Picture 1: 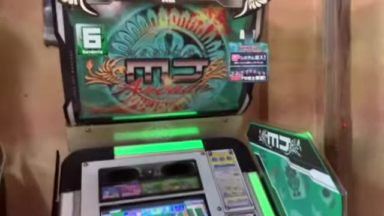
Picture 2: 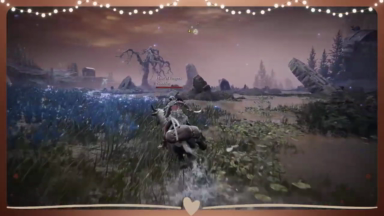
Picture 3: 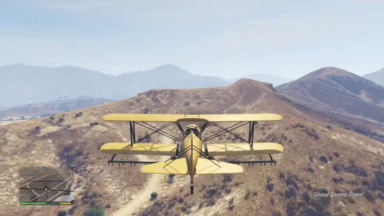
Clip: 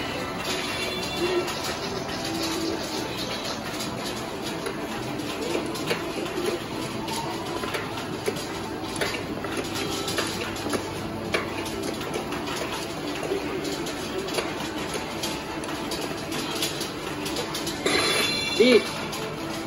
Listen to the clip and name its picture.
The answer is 1